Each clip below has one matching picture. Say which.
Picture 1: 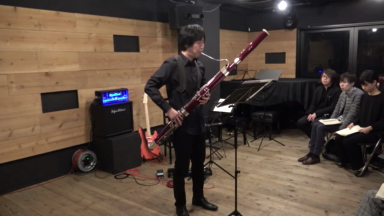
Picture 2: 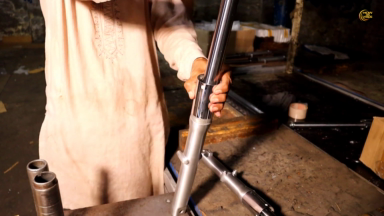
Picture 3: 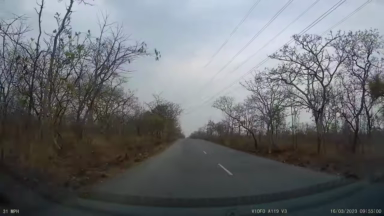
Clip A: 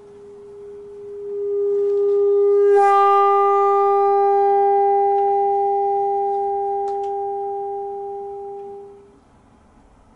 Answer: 1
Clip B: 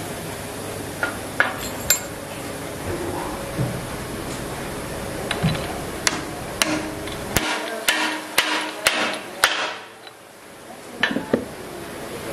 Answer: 2